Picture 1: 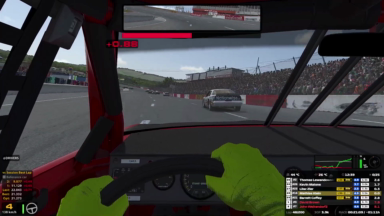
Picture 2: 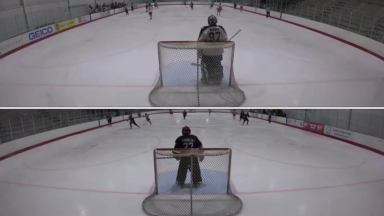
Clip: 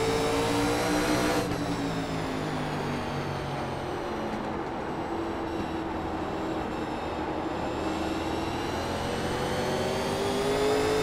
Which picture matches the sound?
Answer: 1